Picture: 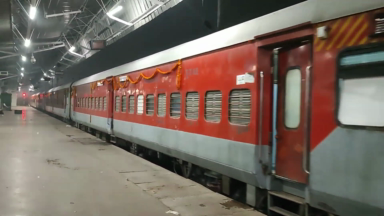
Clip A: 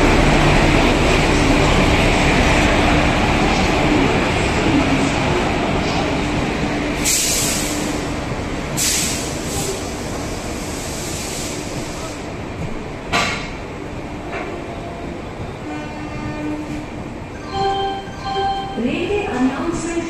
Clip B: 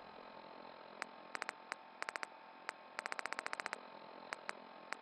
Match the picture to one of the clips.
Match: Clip A